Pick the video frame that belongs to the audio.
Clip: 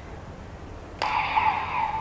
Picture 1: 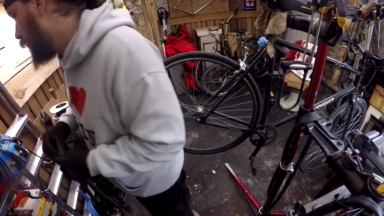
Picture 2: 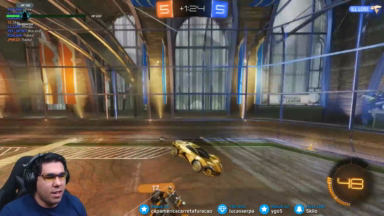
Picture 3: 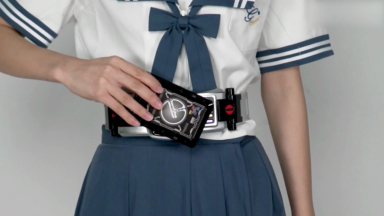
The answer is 3